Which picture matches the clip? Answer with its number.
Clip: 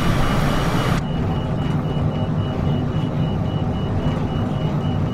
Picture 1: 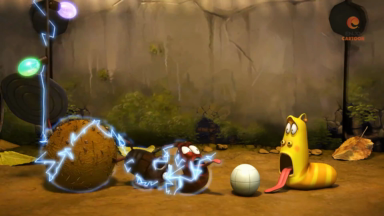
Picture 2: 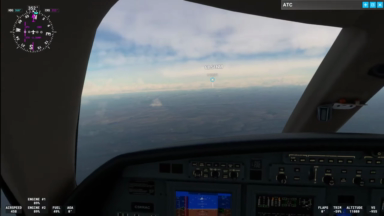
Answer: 2